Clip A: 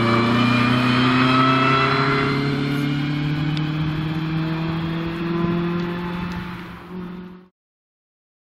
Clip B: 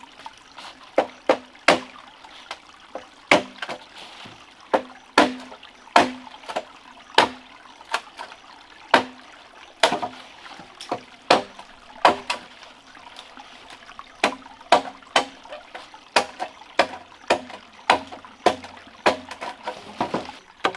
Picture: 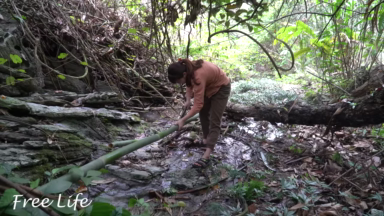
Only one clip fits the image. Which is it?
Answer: B